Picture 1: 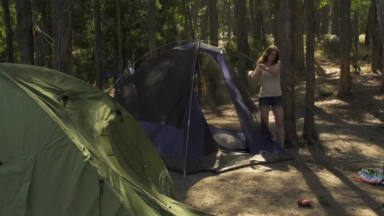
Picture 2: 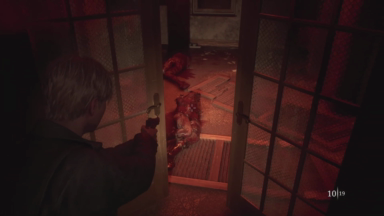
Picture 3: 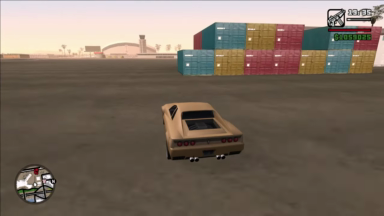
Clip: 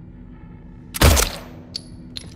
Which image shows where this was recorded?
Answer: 2